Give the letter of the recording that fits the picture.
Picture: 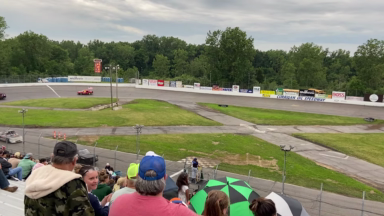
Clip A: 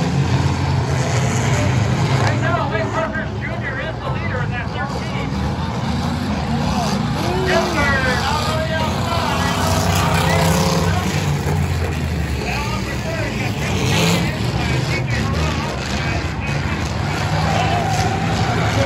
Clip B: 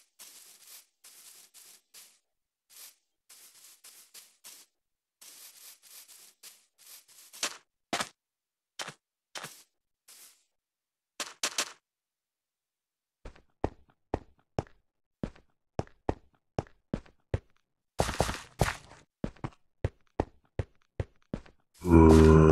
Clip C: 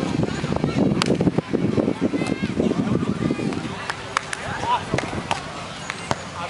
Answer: A